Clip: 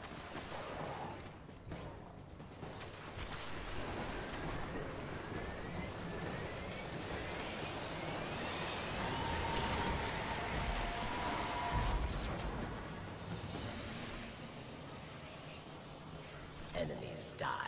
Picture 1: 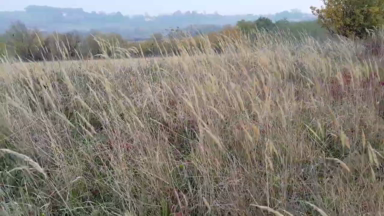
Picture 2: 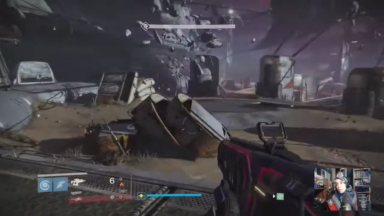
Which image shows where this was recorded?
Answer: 2